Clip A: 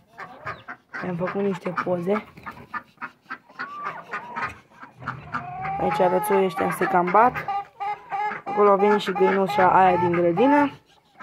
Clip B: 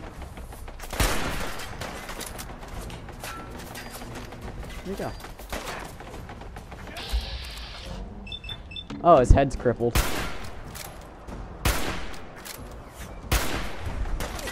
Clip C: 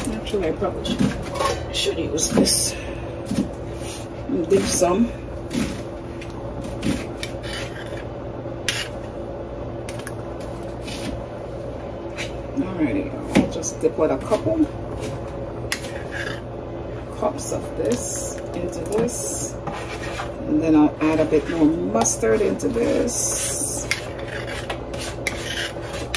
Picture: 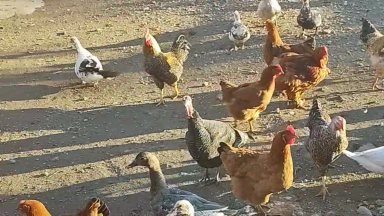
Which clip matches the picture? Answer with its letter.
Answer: A